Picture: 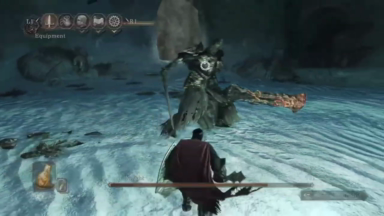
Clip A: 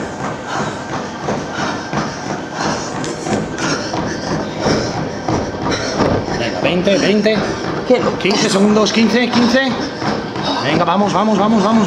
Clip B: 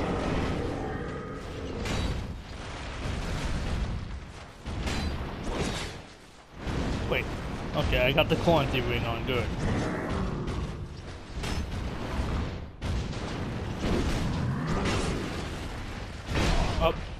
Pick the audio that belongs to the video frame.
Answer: B